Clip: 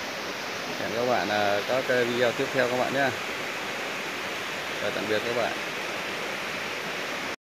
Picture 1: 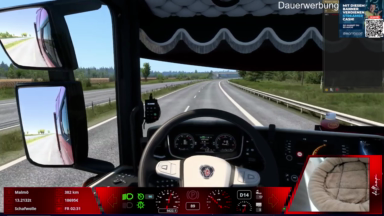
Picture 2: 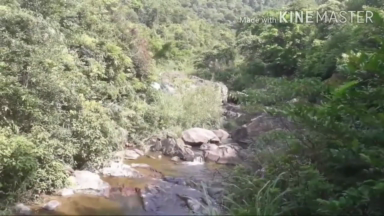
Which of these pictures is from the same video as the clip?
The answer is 2